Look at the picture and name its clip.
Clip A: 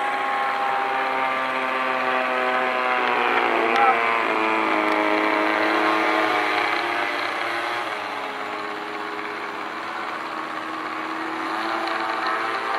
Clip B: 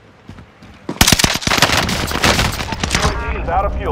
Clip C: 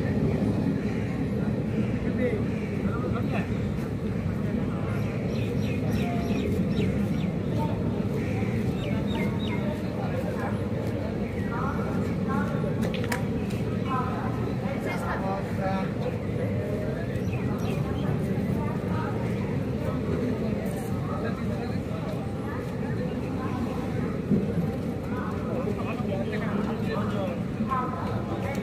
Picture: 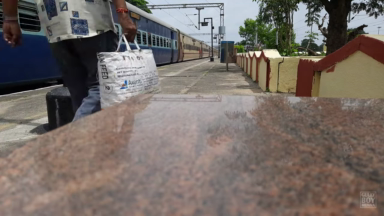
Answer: C